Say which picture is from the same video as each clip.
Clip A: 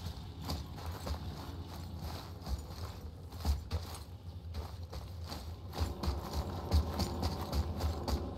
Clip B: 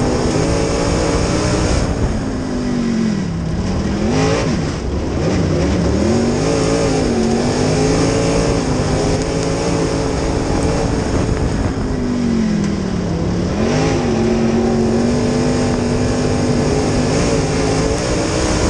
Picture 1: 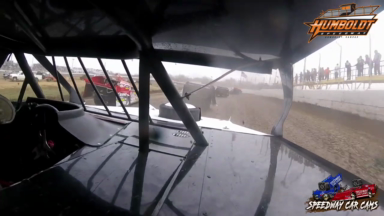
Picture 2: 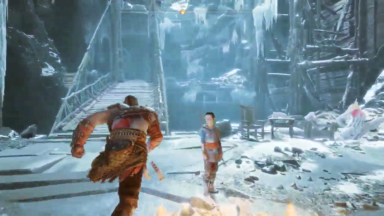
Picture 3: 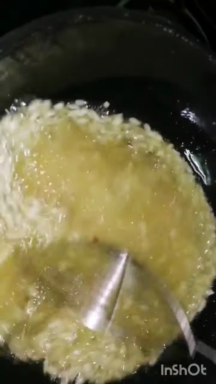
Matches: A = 2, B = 1